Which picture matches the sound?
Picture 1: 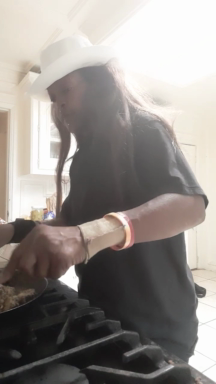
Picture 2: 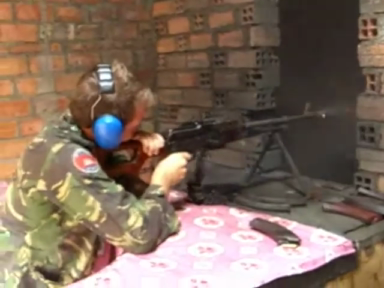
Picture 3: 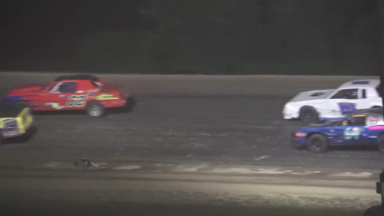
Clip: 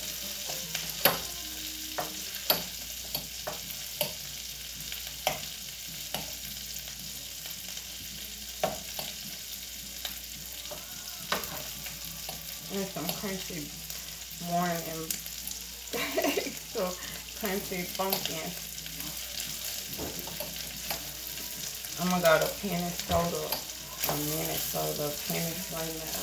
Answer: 1